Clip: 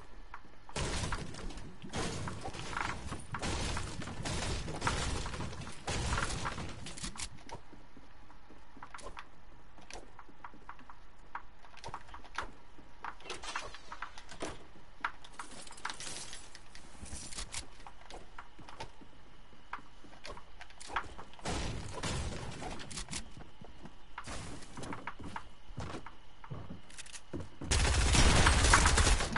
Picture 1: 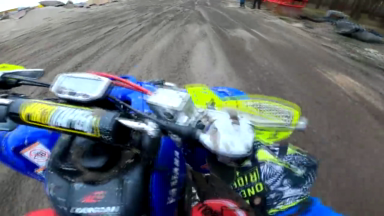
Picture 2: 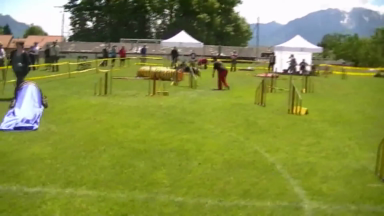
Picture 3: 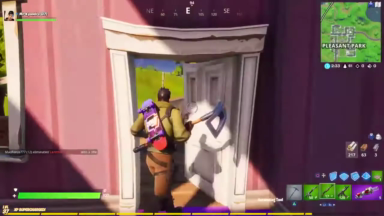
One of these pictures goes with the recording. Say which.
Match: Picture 3